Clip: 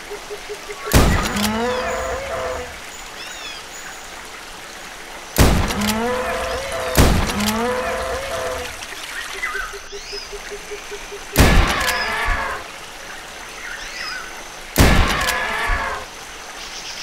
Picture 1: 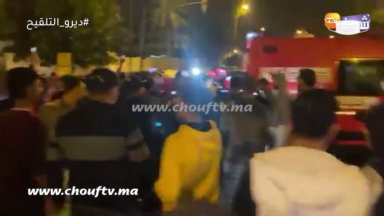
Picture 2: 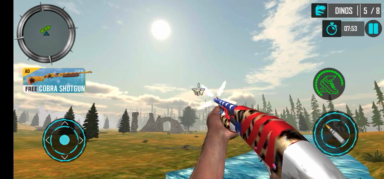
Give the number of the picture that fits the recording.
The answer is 2